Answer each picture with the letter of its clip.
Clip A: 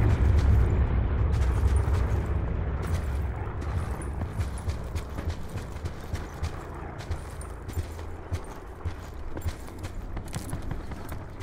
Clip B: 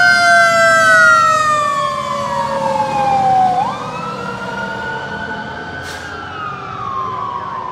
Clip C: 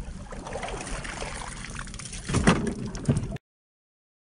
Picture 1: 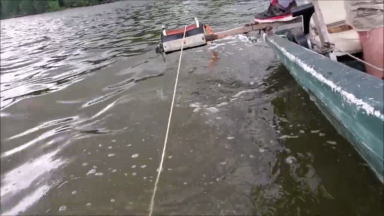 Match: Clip C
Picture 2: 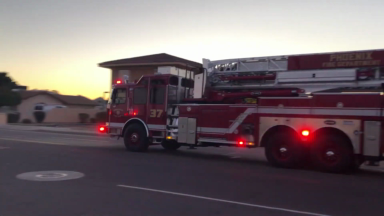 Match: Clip B